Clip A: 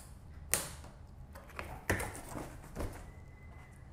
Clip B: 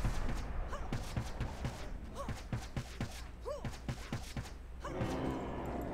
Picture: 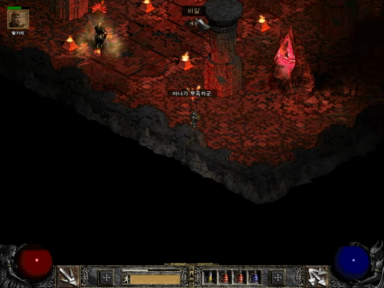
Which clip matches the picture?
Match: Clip B